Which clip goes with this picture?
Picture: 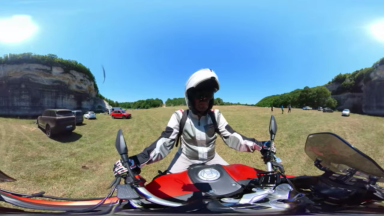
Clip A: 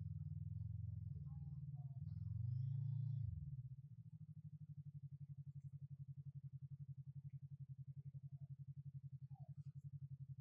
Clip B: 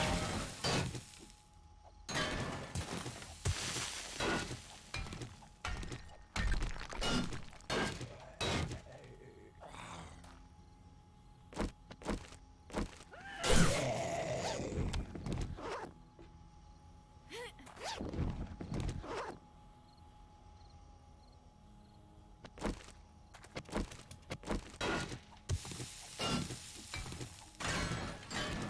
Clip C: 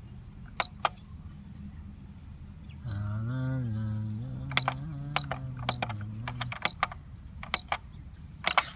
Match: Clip A